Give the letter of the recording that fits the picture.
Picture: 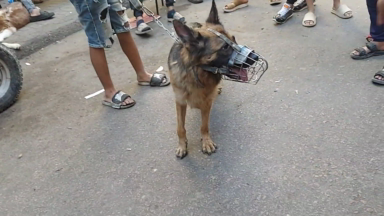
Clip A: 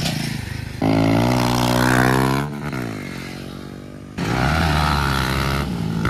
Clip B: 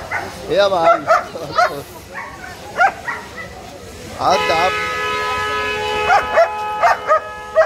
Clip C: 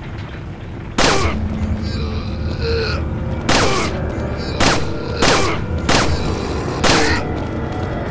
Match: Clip B